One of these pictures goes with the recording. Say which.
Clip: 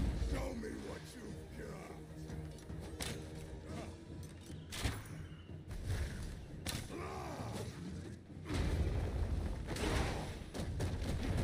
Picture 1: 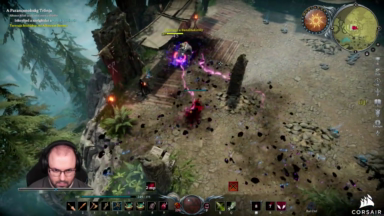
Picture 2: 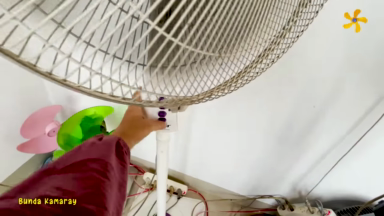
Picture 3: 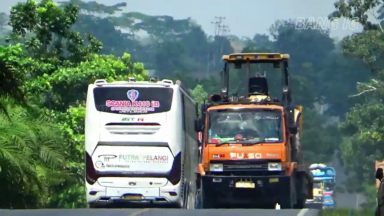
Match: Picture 1